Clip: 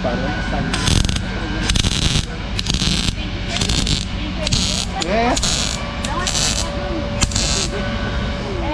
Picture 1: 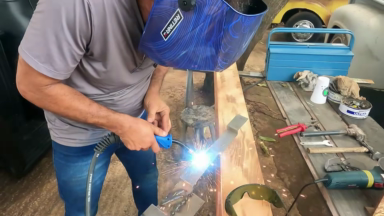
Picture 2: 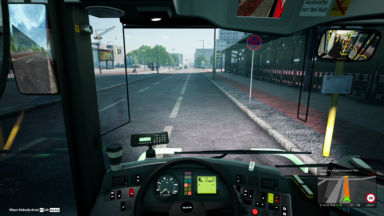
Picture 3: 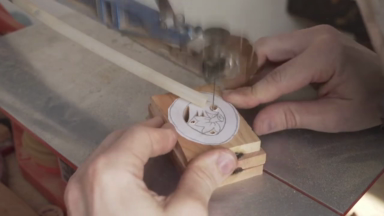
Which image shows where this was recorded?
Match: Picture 1